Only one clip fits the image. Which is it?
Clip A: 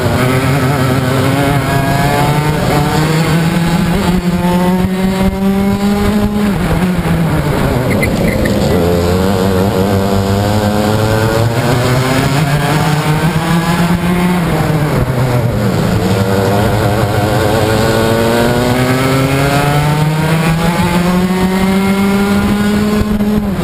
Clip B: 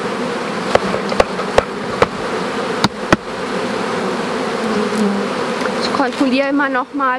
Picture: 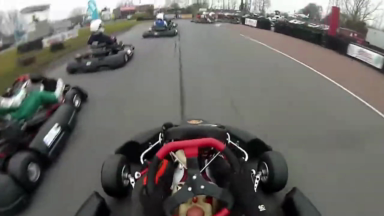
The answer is A